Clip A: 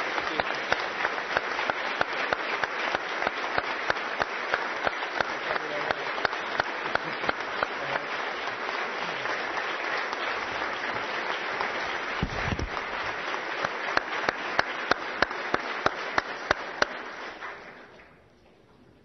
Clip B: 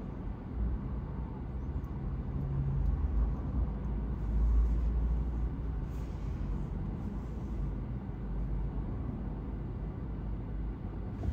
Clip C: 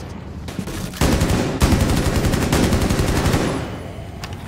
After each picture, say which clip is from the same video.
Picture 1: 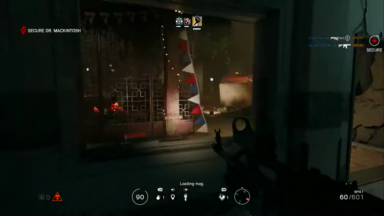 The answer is C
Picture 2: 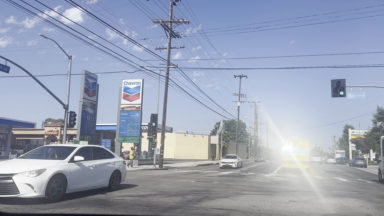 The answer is B